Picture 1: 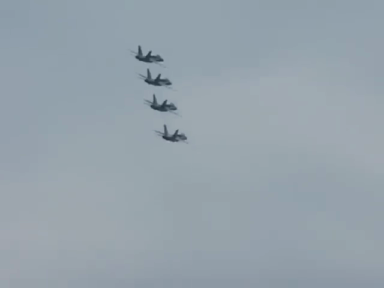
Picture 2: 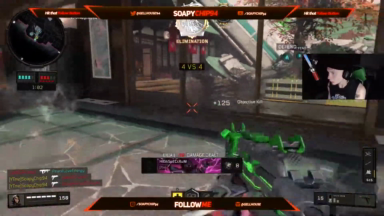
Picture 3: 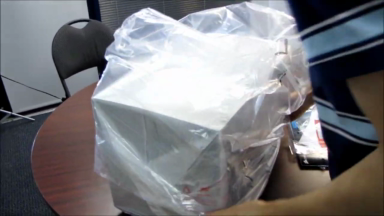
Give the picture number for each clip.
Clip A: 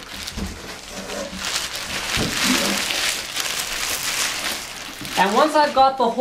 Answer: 3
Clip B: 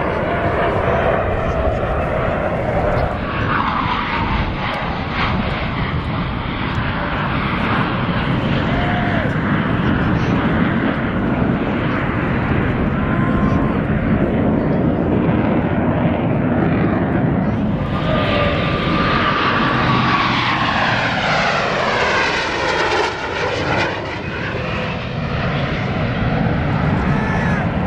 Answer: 1